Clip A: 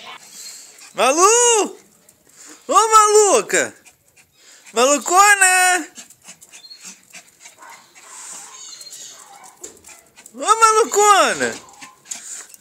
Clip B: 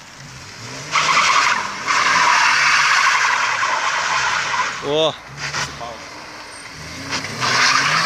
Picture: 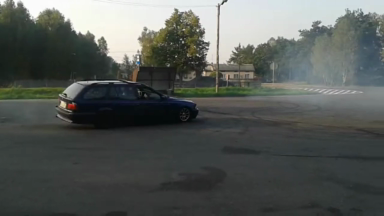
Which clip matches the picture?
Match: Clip B